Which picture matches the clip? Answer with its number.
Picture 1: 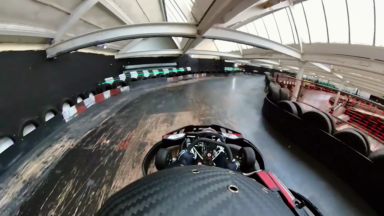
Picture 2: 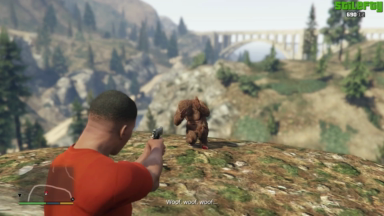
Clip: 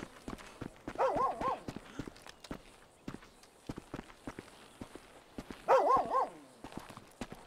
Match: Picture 2